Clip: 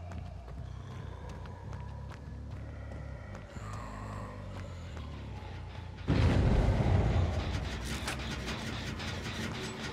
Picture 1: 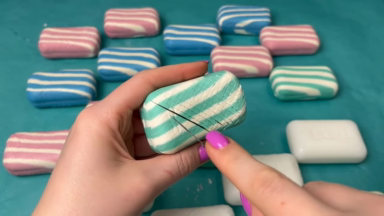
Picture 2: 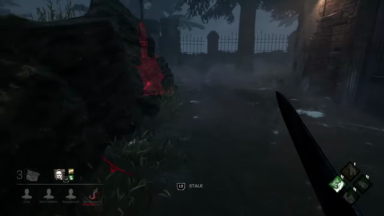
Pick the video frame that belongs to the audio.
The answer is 2